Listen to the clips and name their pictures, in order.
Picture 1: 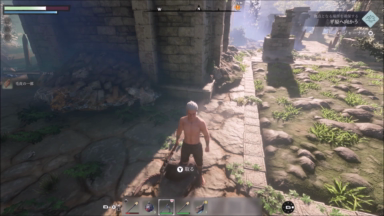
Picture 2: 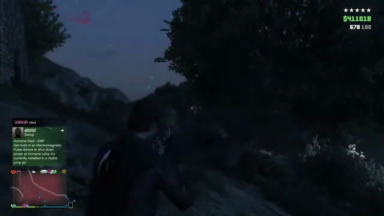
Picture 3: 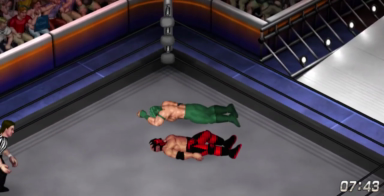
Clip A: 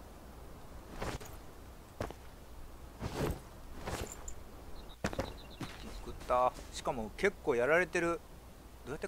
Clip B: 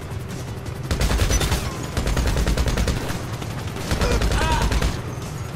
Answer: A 1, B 2